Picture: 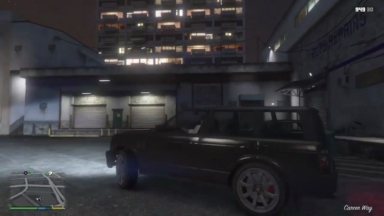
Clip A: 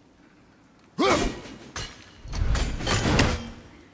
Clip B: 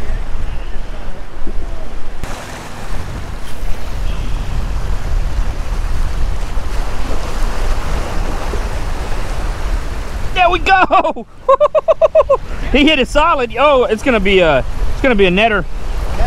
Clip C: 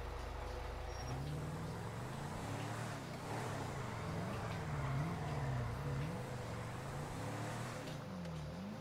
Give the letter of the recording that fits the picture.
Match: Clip C